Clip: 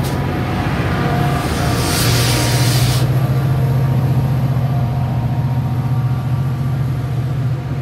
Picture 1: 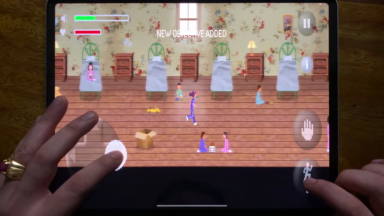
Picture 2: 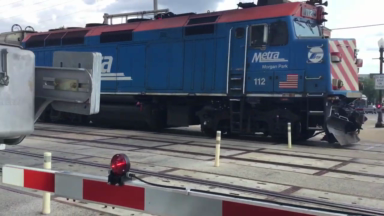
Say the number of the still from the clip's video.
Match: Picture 2